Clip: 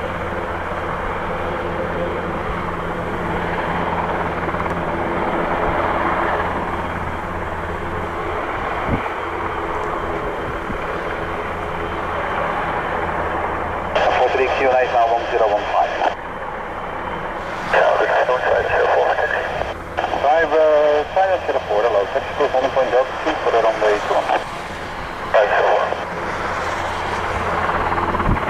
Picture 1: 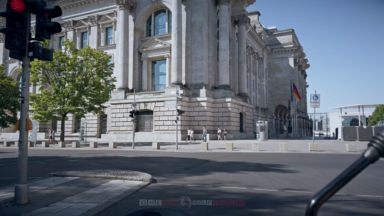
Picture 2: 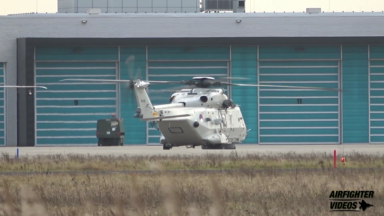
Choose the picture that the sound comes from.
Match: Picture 2